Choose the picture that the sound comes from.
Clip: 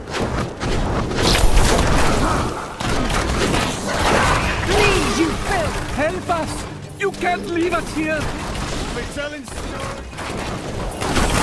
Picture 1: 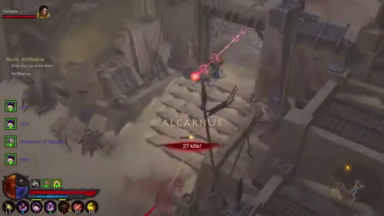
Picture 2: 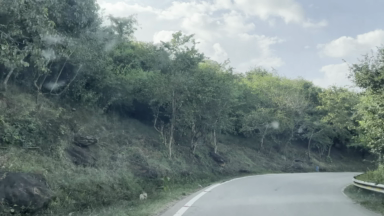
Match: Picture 1